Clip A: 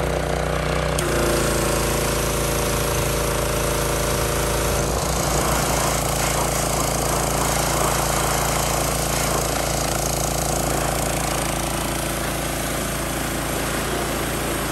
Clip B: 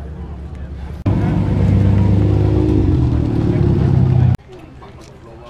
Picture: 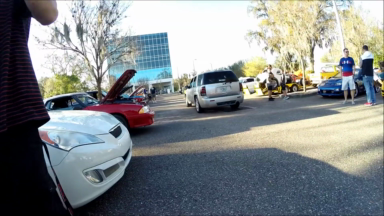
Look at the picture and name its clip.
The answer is B